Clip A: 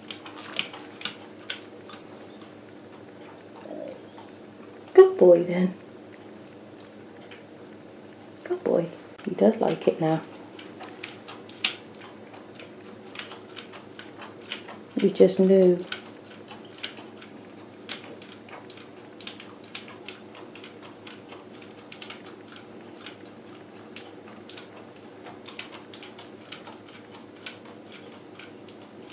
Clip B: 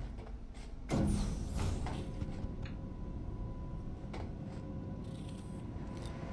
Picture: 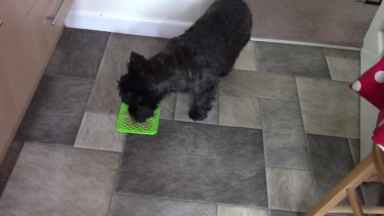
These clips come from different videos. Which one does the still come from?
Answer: A